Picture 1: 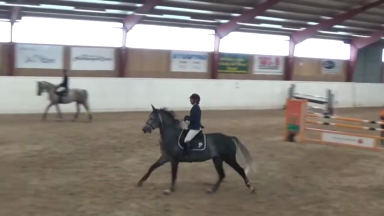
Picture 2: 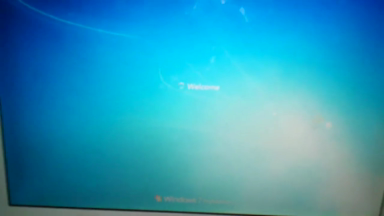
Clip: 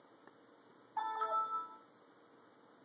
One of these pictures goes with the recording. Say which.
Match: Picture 2